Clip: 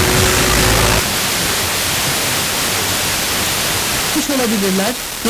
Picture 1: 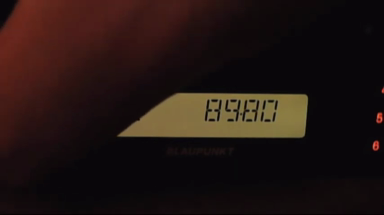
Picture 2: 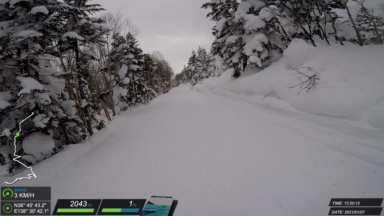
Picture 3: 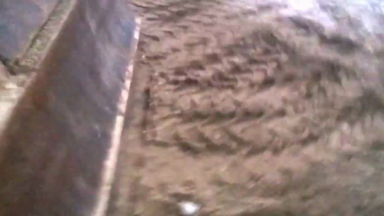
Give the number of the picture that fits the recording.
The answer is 1